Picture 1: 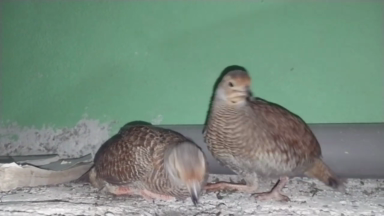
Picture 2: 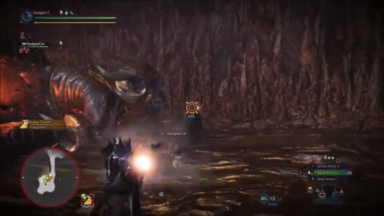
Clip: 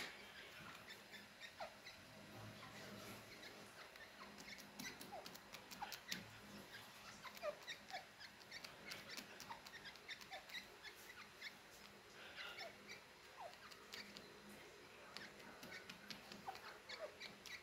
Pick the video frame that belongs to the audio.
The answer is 1